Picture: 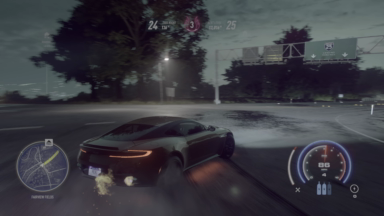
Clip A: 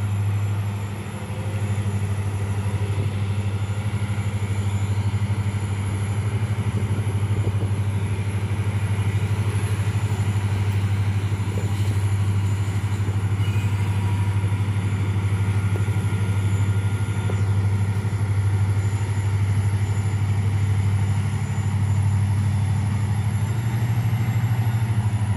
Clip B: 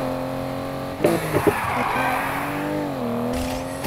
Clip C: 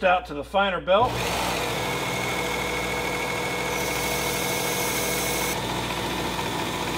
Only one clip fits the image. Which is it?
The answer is B